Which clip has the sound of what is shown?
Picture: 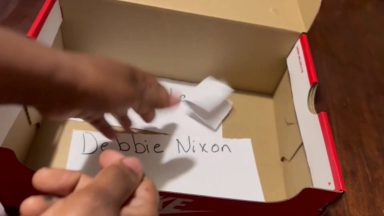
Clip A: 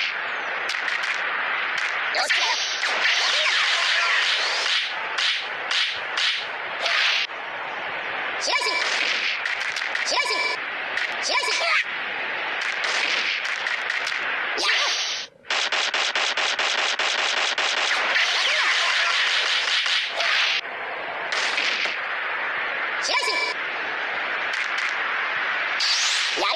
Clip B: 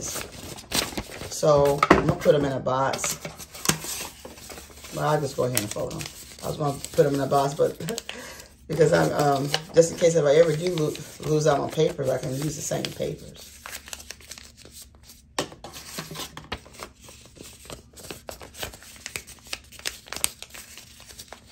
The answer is B